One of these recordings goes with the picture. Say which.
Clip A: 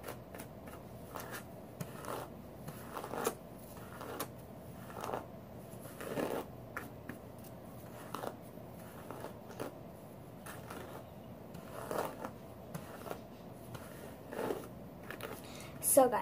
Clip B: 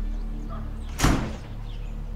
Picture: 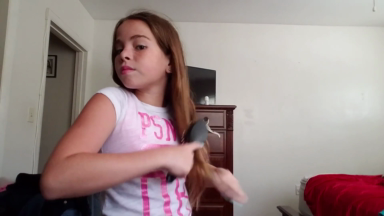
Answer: A